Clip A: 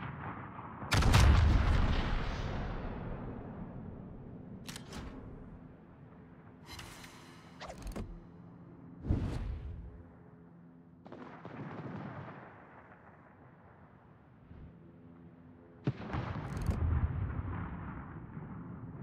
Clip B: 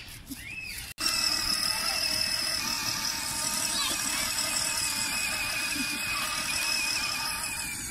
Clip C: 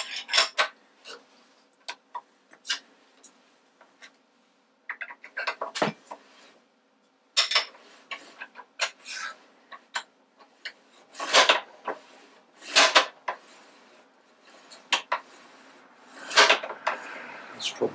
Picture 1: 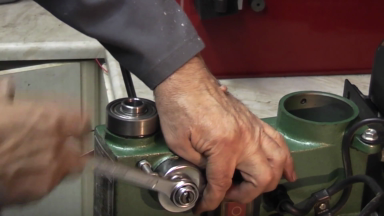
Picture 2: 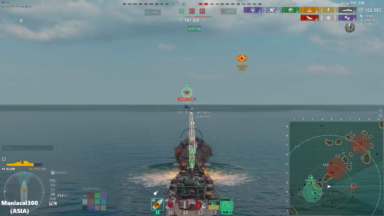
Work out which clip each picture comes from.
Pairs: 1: C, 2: A